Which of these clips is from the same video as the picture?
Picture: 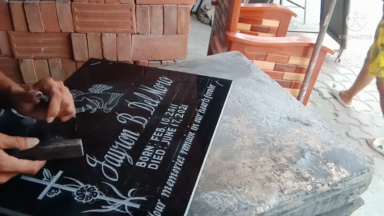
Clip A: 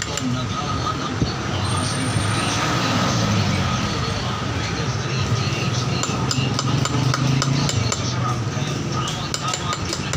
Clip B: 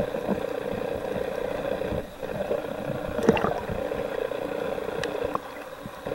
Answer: A